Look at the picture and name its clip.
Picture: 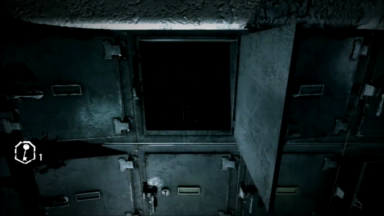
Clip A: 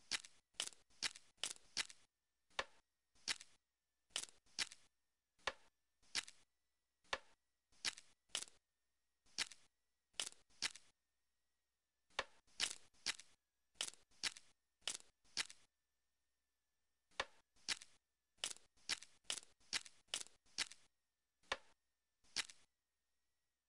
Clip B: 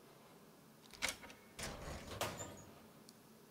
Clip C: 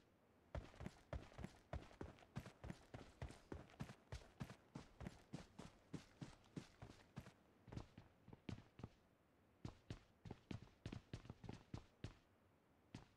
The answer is B